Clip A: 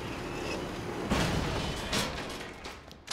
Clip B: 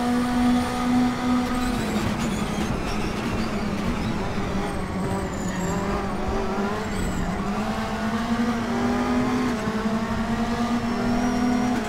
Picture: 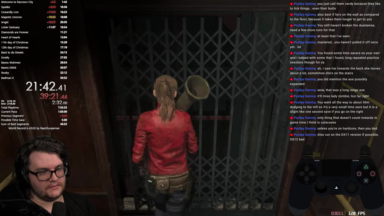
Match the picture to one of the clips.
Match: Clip A